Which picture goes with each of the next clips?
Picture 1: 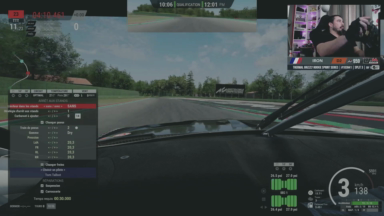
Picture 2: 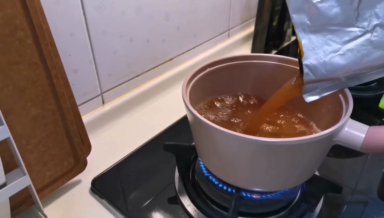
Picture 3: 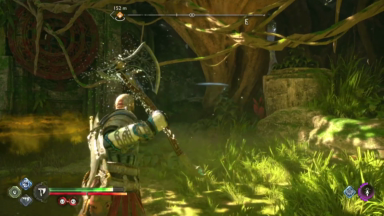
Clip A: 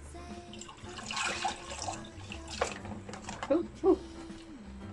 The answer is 2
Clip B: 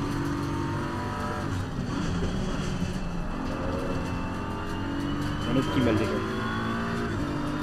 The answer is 1